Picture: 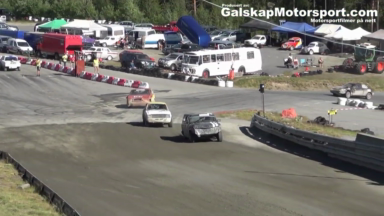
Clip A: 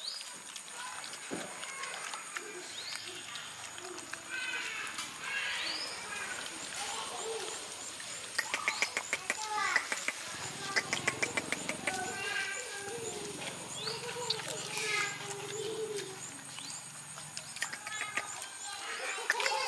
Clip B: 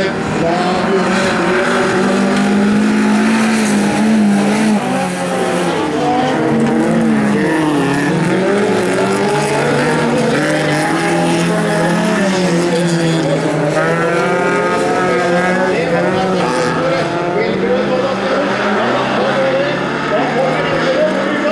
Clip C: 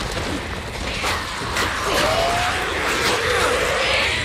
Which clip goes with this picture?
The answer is B